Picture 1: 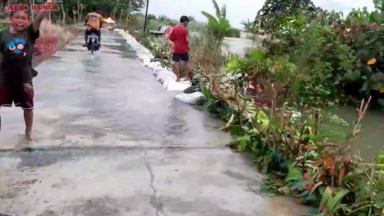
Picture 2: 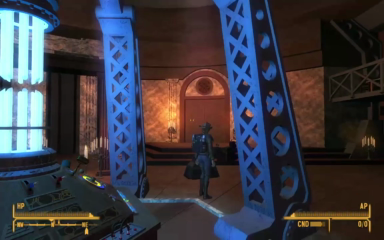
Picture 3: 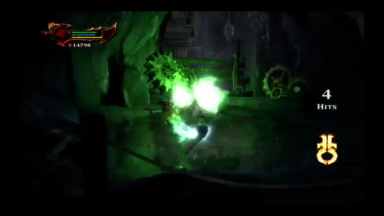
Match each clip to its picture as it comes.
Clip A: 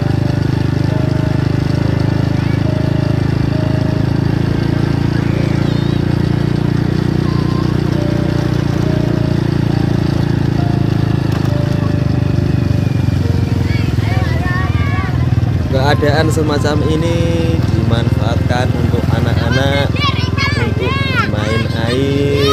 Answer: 1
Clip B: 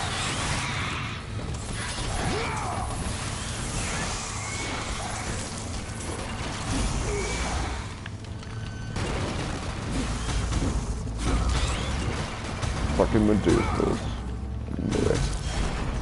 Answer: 3